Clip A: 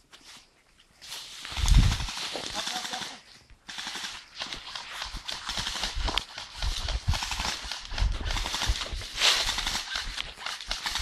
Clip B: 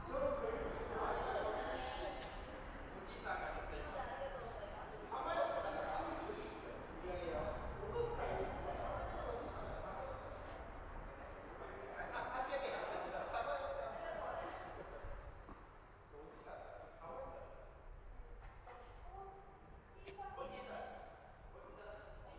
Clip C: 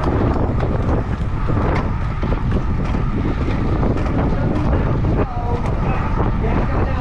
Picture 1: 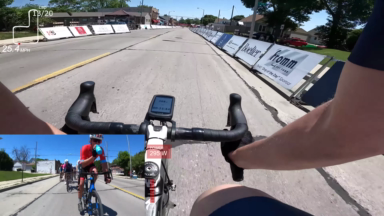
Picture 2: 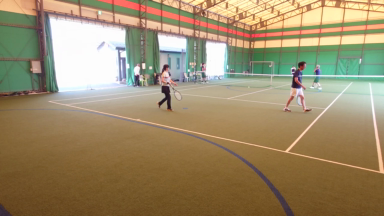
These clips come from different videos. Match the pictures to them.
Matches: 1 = C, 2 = B